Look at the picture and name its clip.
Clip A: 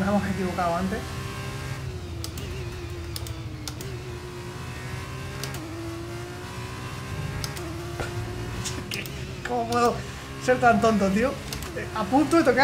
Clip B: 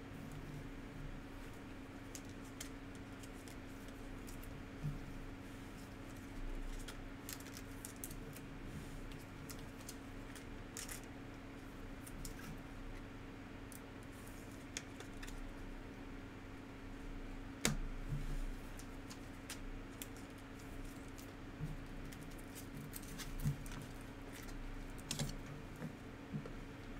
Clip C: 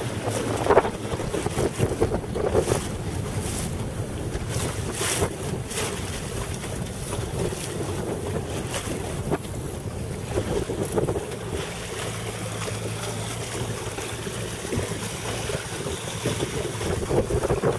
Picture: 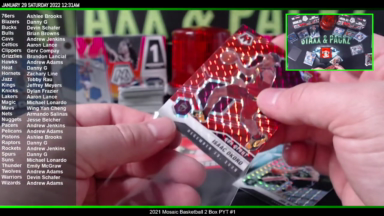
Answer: B